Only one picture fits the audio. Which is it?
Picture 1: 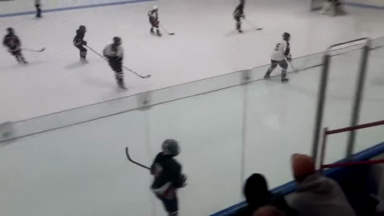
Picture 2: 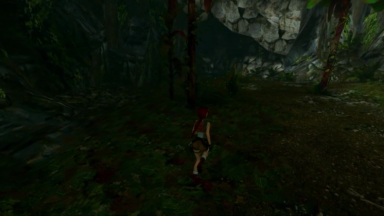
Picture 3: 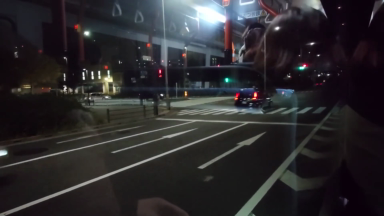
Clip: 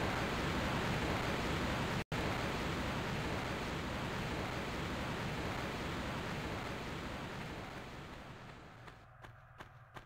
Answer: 2